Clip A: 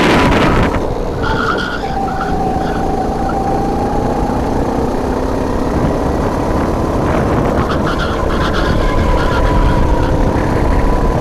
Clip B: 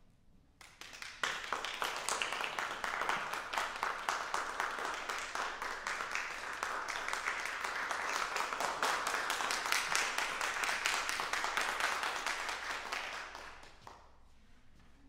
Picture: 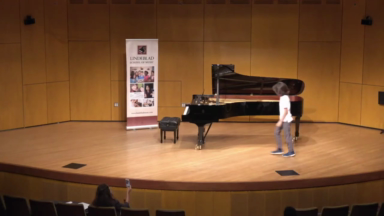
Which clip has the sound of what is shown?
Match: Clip B